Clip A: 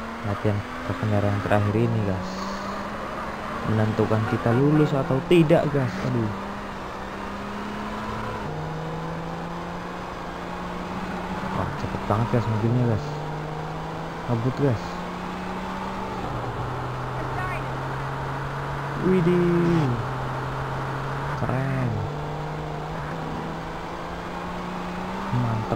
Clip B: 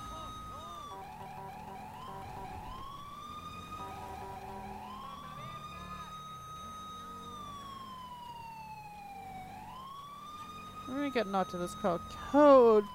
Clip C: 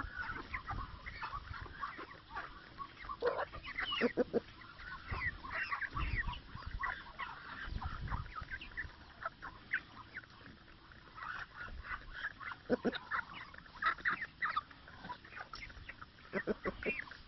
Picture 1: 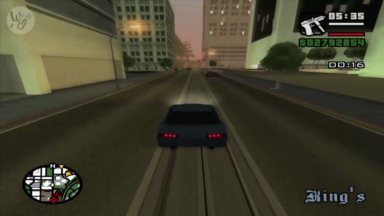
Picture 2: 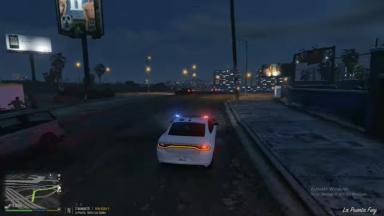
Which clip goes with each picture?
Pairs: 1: A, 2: B